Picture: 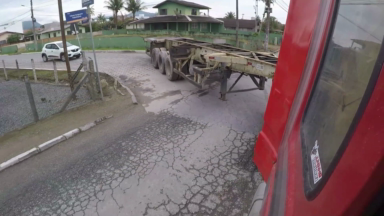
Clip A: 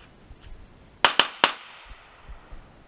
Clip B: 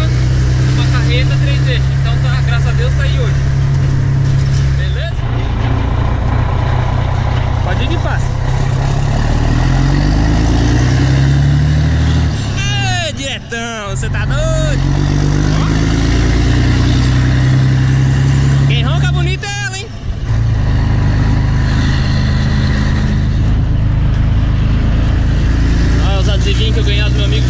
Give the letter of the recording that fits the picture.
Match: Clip B